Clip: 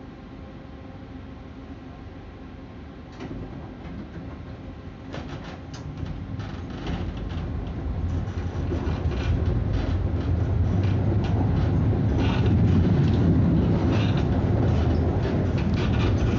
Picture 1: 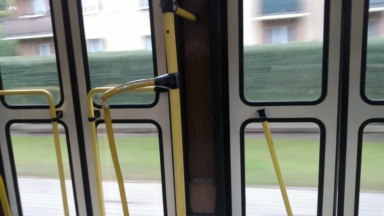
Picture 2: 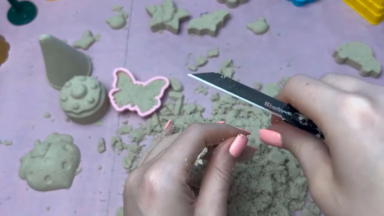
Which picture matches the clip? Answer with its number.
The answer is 1